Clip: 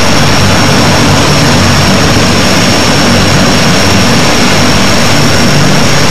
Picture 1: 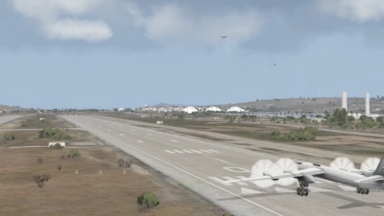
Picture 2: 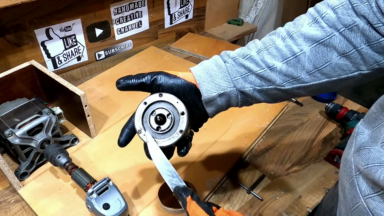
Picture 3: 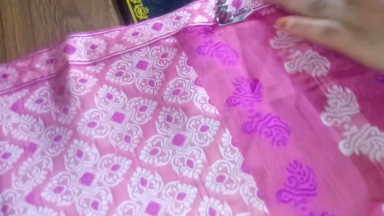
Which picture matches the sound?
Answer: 1